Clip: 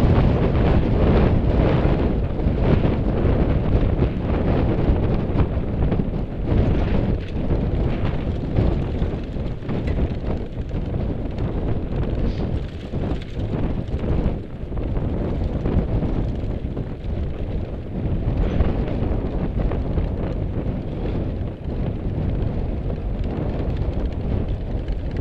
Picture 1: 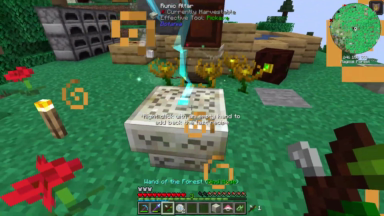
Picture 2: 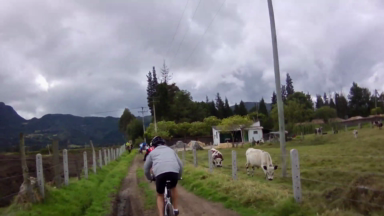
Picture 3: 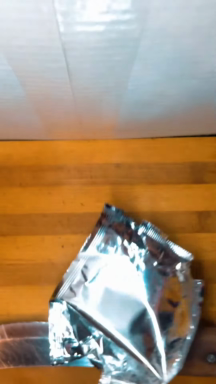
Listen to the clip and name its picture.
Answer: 2